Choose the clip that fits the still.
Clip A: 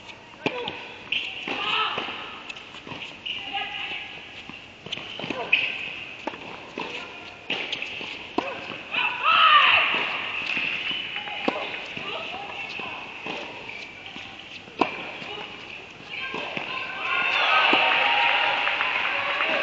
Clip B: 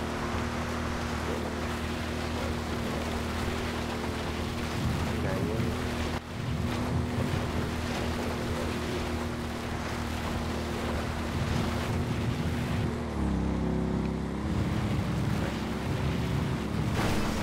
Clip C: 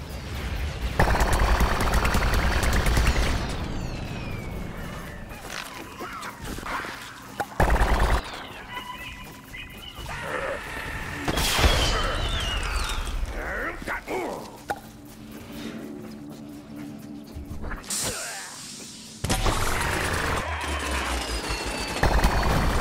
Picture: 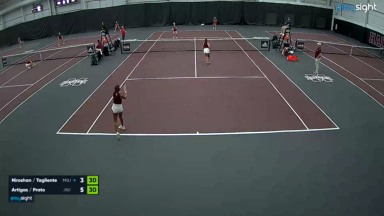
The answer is A